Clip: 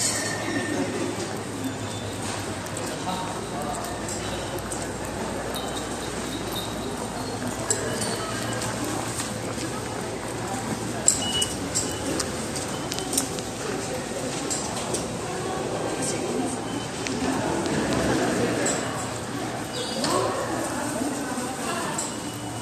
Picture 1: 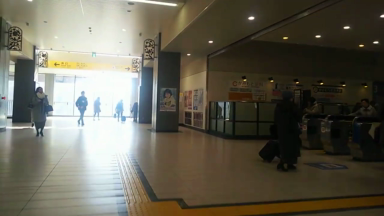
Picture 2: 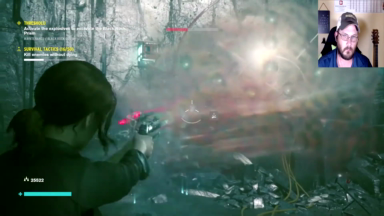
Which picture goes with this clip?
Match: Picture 1